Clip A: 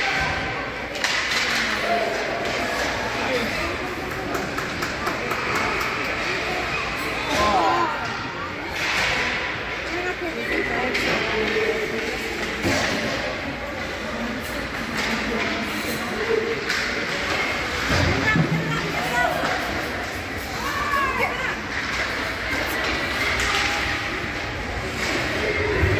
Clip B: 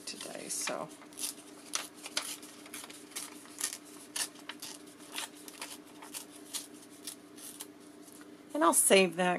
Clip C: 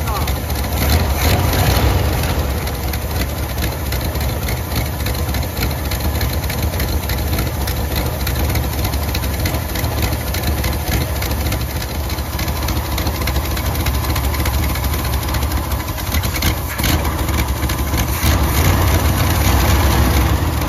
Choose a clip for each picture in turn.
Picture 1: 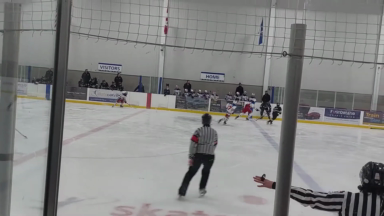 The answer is A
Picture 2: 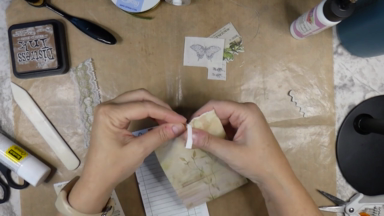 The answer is B